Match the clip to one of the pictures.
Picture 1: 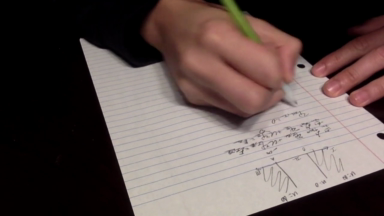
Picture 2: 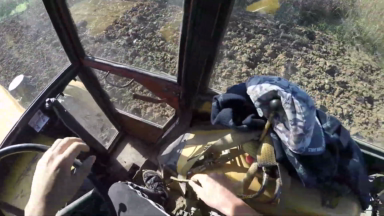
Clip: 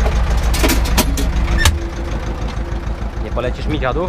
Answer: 2